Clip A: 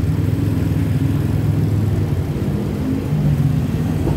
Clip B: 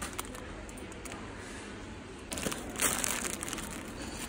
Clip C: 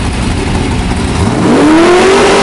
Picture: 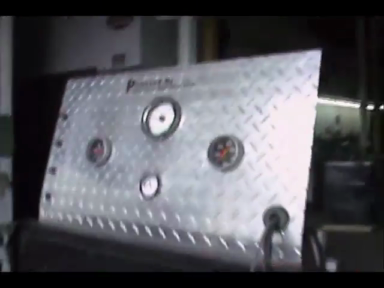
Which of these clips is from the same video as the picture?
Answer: C